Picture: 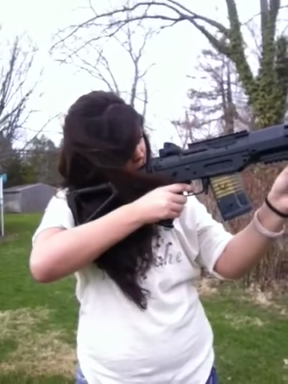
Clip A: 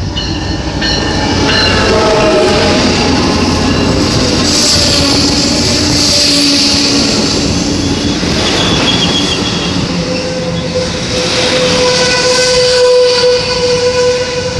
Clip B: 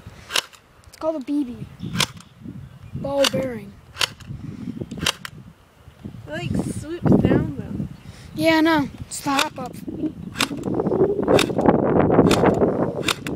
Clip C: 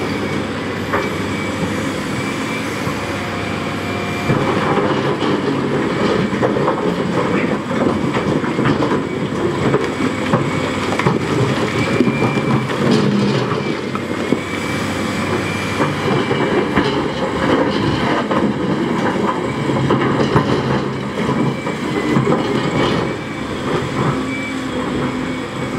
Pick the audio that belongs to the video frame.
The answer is B